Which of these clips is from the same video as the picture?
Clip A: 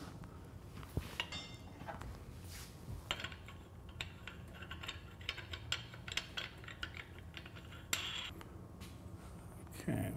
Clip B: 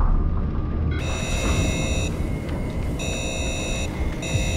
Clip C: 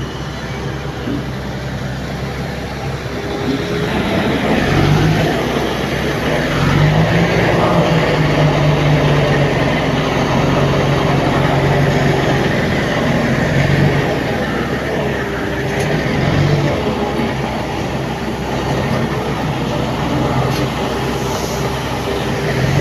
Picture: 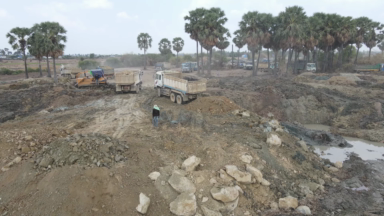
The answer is C